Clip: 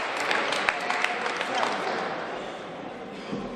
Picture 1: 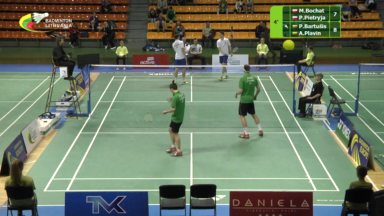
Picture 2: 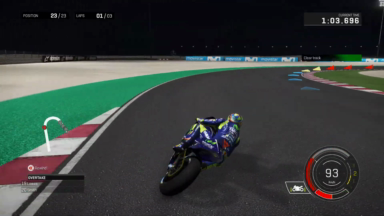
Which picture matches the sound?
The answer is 1